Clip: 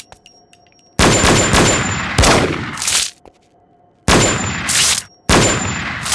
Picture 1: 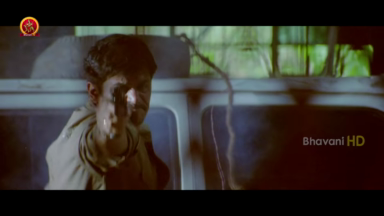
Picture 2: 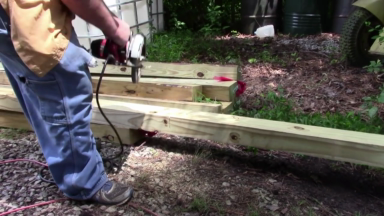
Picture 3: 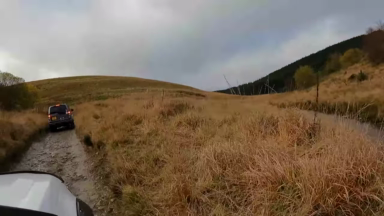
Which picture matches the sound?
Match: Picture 1